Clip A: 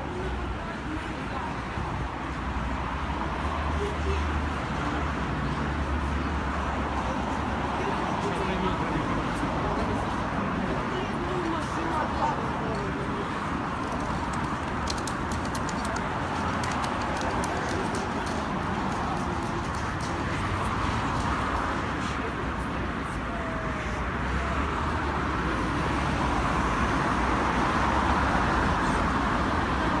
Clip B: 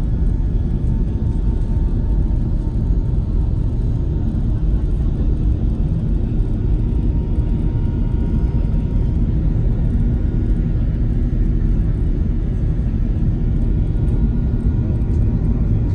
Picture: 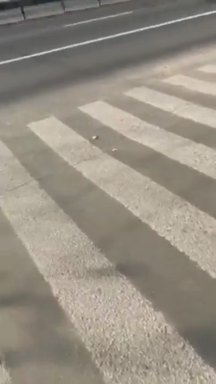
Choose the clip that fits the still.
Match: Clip A